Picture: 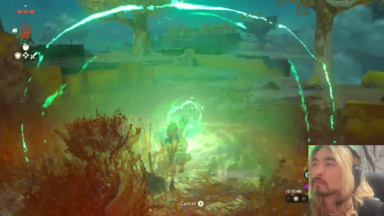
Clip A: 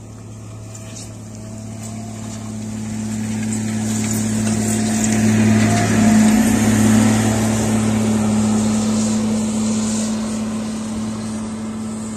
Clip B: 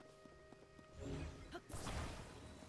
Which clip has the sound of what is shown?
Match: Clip B